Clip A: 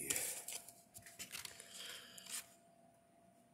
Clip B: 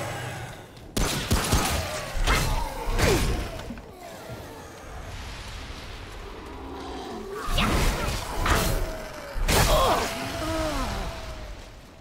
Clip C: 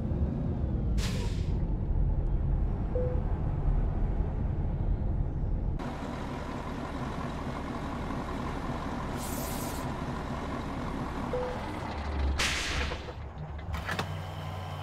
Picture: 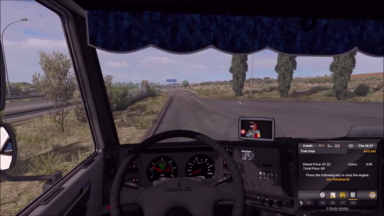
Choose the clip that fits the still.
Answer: C